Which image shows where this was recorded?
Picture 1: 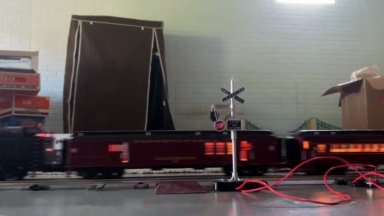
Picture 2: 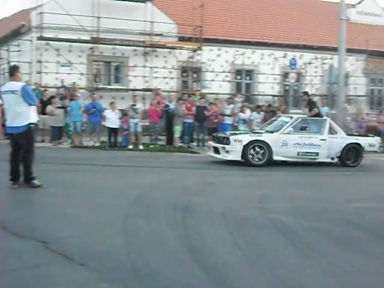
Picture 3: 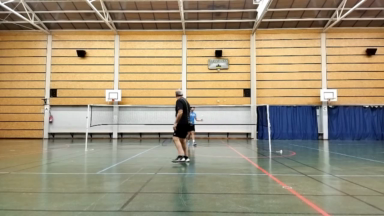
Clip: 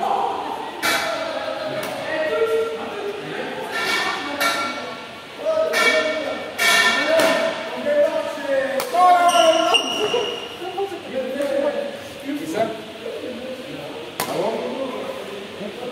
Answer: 3